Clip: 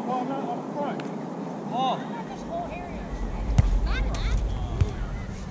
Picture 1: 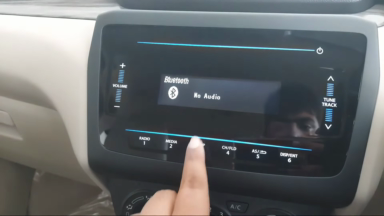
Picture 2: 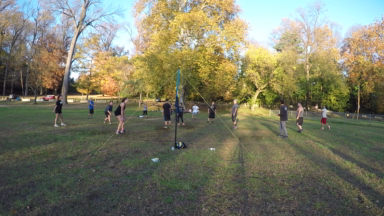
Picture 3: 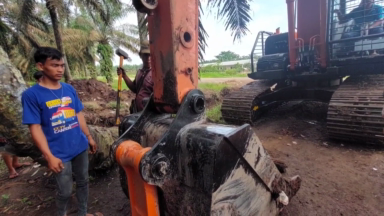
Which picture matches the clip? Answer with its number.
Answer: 2